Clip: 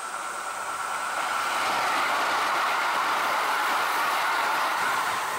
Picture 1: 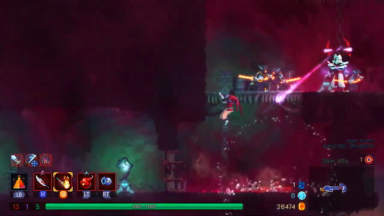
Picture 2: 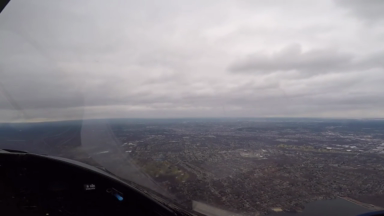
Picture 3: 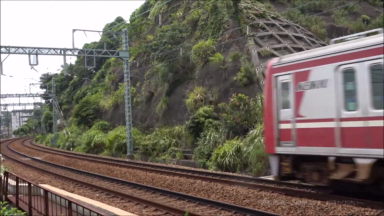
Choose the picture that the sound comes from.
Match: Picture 3